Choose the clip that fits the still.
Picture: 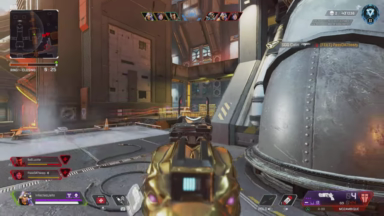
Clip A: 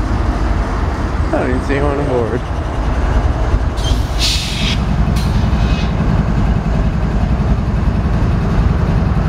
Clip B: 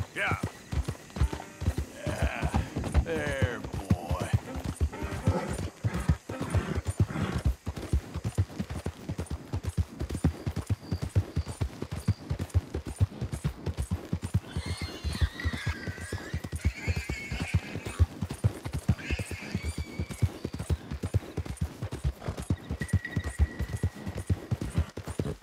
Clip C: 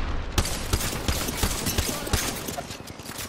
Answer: C